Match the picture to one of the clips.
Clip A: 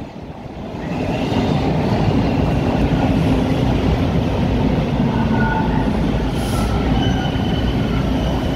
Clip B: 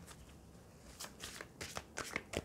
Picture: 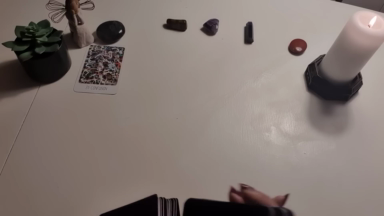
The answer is B